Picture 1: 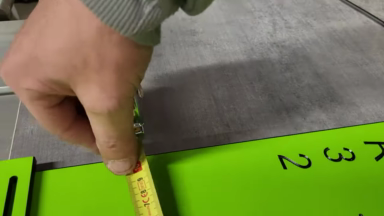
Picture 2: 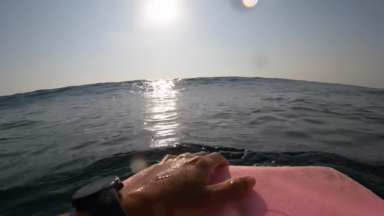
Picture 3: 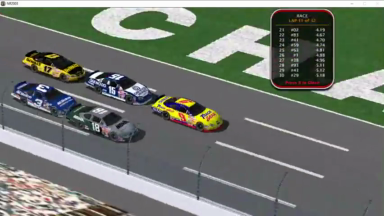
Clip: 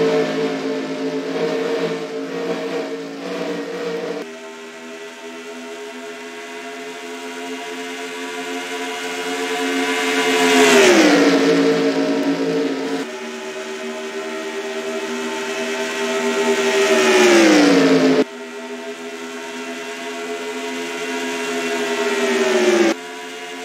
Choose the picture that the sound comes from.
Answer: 3